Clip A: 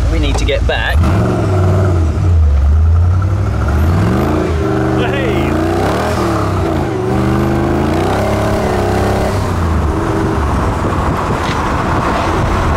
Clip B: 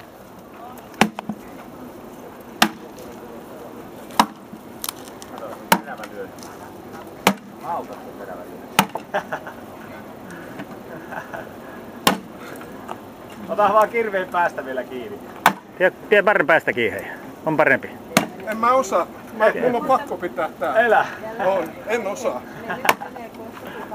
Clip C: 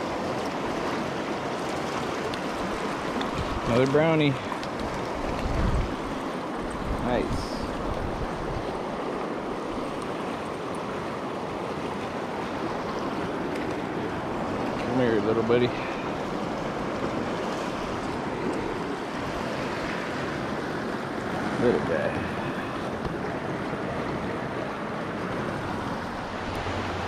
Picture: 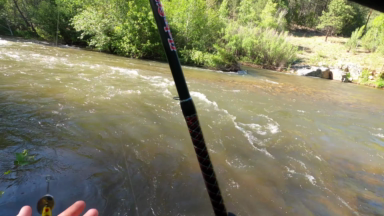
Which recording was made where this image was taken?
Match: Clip C